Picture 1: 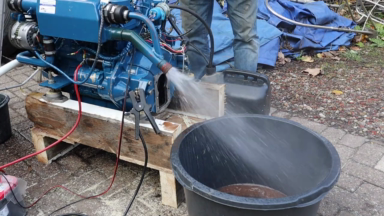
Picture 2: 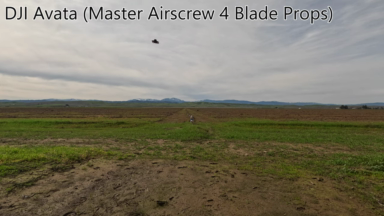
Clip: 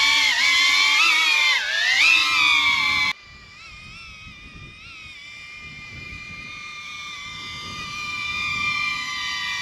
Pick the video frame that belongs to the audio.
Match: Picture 2